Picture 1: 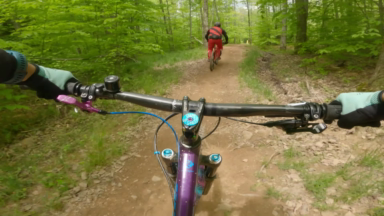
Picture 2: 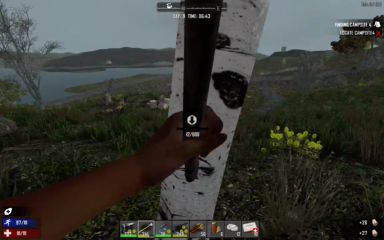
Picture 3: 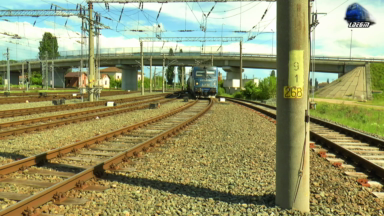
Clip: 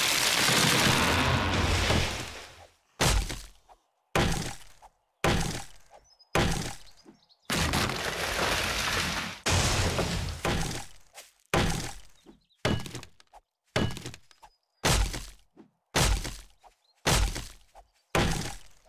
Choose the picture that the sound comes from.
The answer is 2